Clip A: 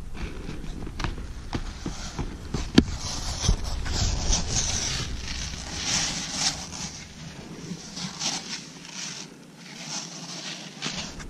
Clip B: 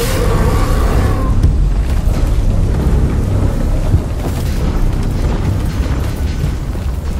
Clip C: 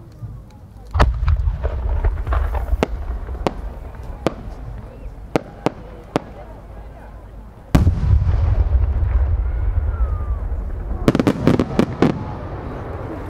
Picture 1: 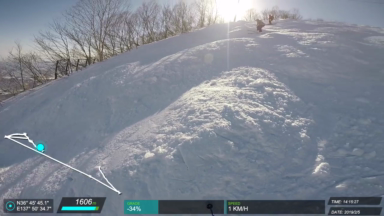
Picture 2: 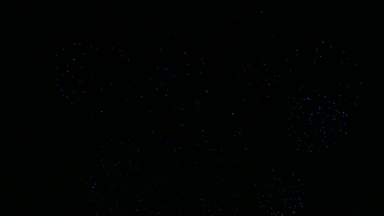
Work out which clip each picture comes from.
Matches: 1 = A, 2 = C